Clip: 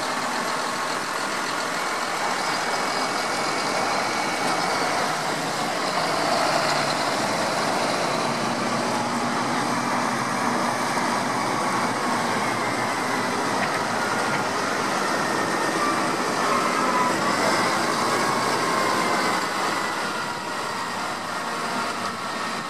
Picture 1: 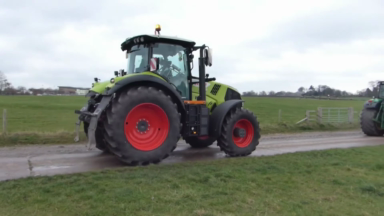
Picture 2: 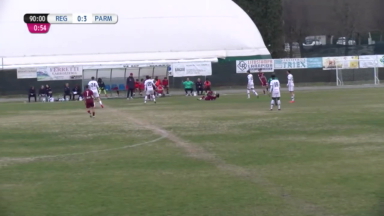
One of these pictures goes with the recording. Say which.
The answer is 1